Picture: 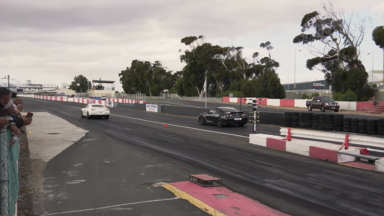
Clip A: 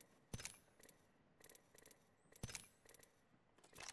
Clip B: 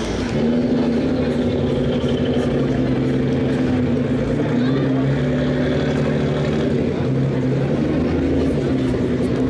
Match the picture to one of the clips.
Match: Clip B